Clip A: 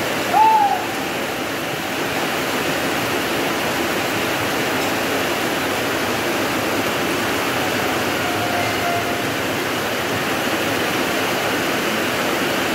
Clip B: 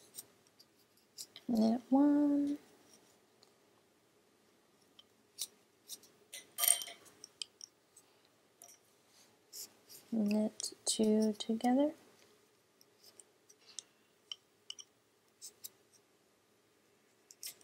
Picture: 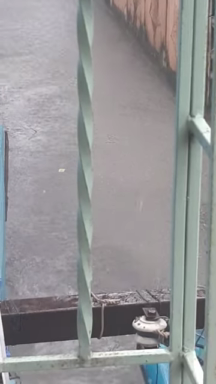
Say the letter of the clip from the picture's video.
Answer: A